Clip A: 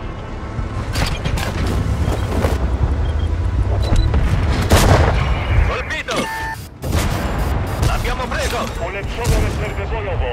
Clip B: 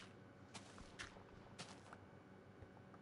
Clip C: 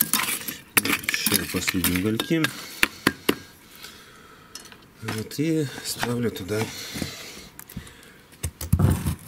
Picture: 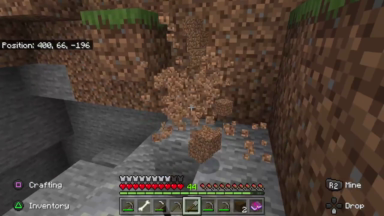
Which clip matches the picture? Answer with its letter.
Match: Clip B